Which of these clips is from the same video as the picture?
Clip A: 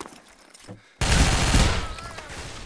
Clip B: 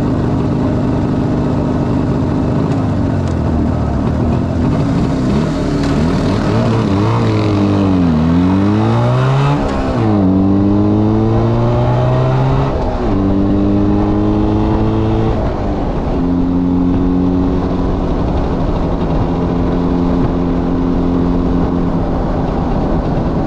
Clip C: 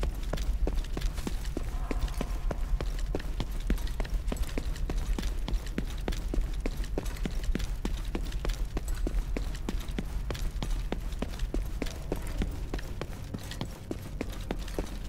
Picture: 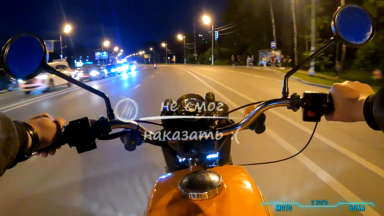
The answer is B